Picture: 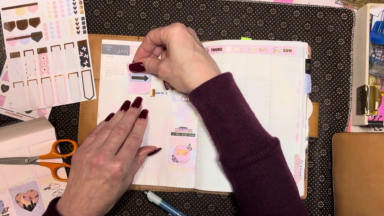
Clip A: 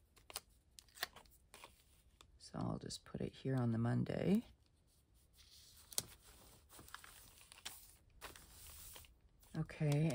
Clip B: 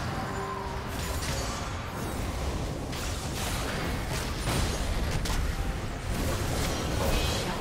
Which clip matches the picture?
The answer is A